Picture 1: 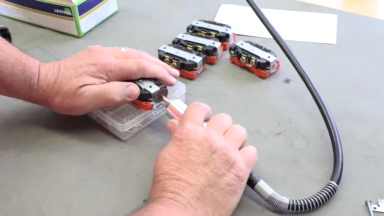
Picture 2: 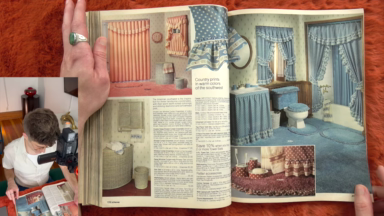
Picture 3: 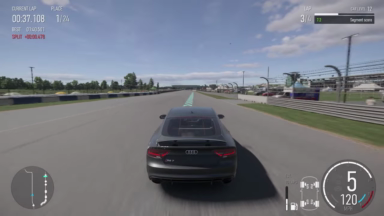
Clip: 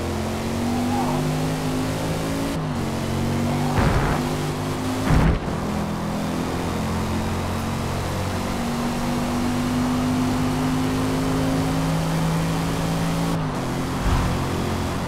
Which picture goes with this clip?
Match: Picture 3